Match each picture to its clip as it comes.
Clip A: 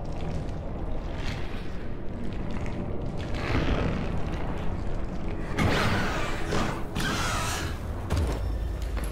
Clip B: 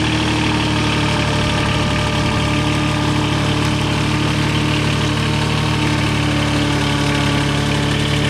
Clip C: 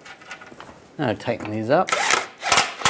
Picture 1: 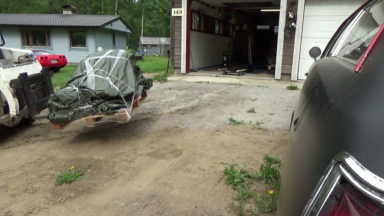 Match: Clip B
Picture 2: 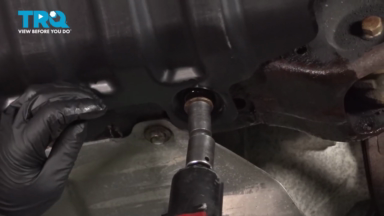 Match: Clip C